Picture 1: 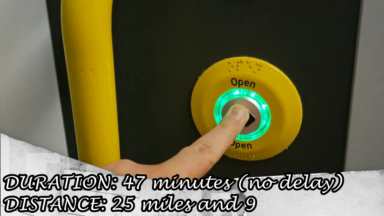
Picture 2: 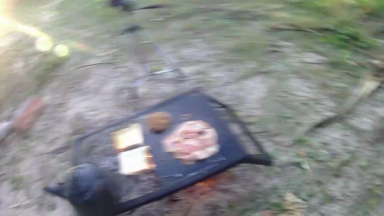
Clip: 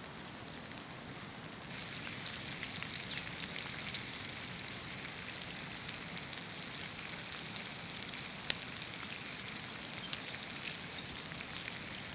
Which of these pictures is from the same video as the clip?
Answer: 2